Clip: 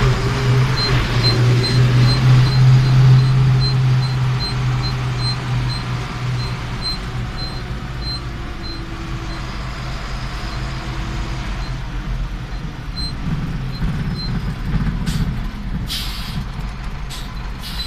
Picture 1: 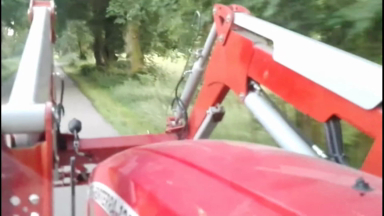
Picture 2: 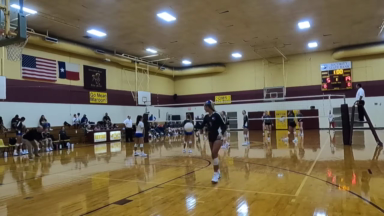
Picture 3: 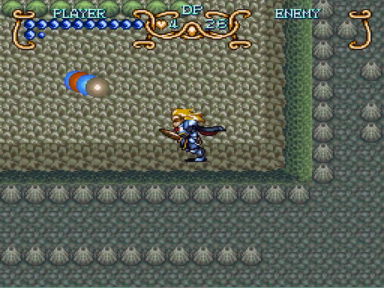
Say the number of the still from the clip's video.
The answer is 1